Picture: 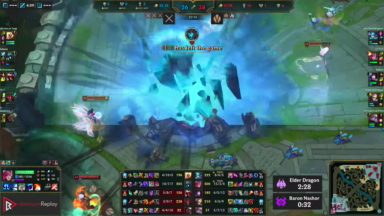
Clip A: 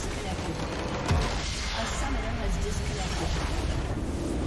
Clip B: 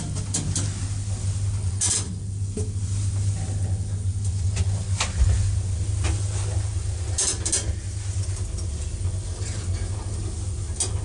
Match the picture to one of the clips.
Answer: A